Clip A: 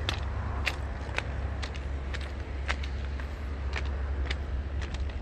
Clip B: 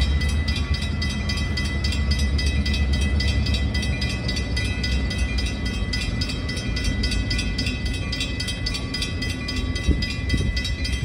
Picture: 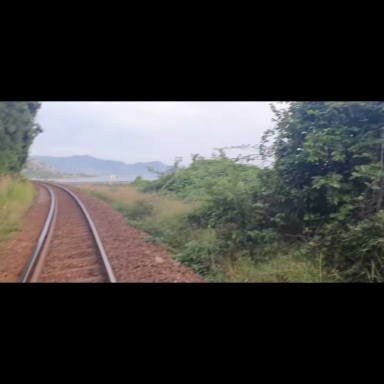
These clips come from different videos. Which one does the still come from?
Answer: A